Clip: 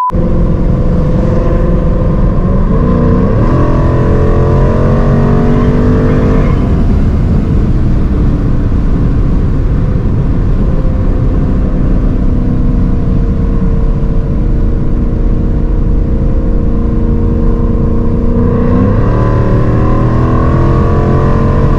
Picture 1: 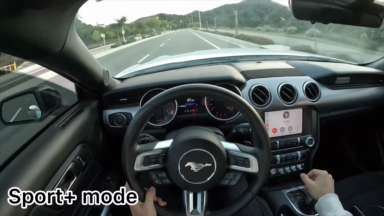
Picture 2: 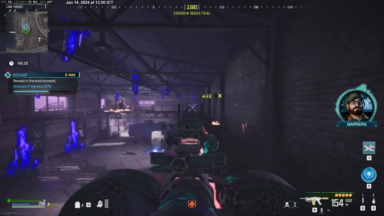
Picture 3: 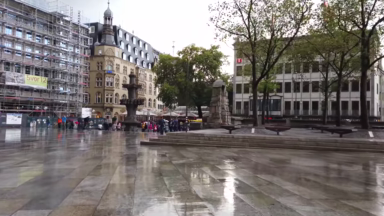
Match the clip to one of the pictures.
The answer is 1